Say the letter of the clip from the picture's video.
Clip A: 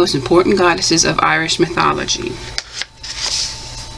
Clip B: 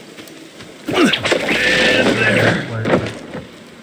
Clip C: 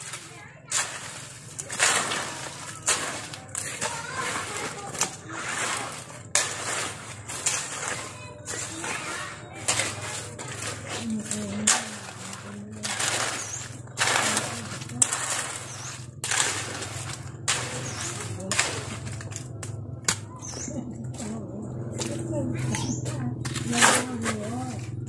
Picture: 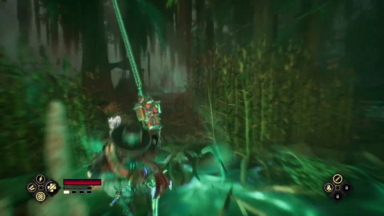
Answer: B